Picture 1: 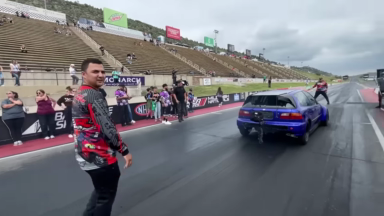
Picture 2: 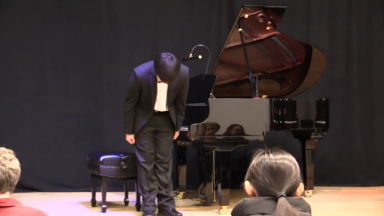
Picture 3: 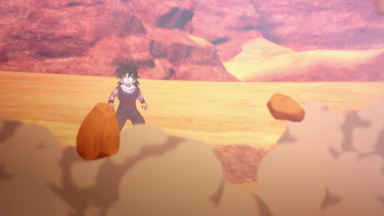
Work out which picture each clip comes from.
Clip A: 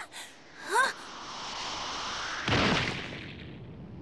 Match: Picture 3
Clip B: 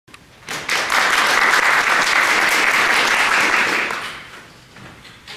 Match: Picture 2